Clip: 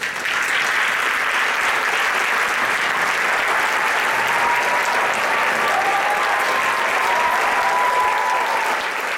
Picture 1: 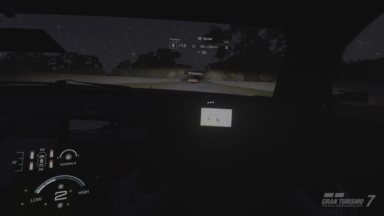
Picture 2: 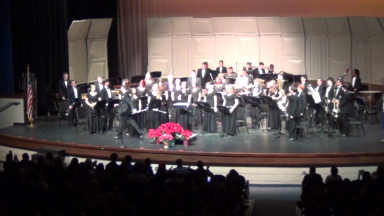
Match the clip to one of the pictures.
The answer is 2